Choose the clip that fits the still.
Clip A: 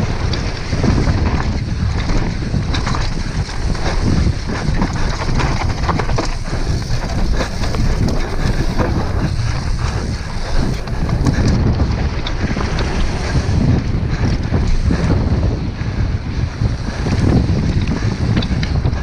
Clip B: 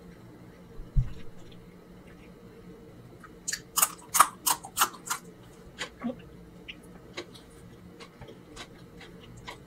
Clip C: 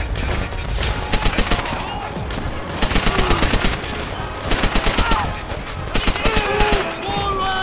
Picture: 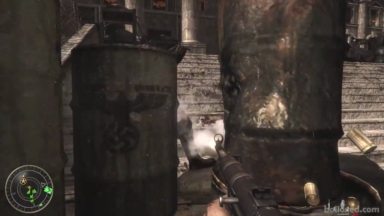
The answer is C